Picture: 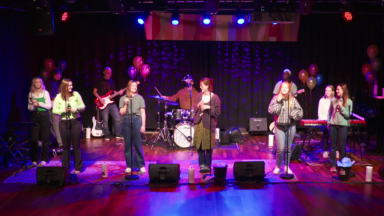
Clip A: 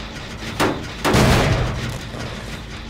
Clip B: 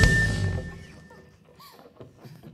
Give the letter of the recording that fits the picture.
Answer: B